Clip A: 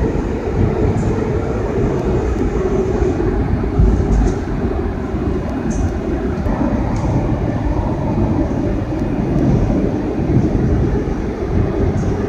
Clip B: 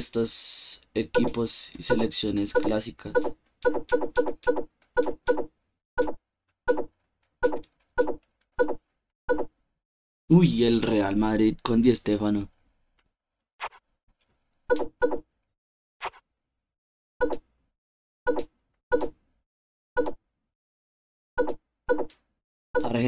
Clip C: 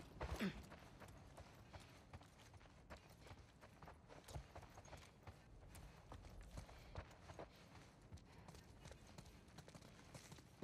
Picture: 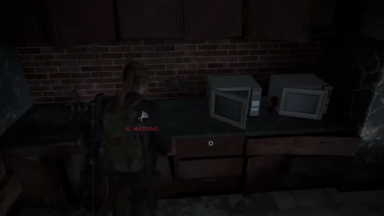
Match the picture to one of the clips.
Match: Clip C